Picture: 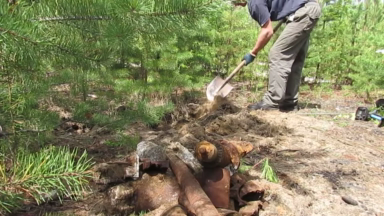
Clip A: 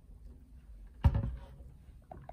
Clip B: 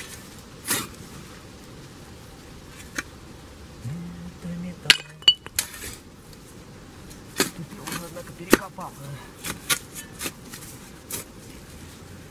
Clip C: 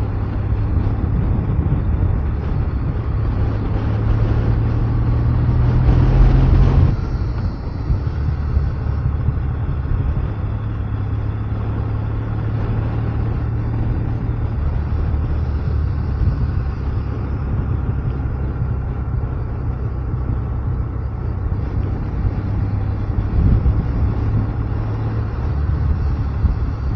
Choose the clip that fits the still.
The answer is B